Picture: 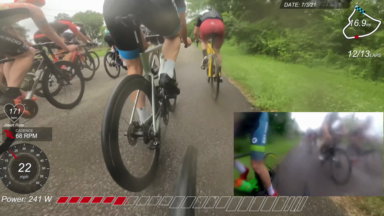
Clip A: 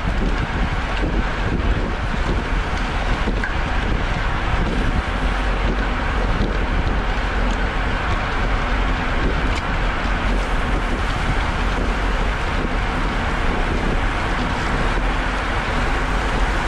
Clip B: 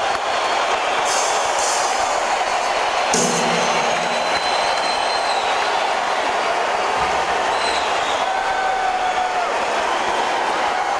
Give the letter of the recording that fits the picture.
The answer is A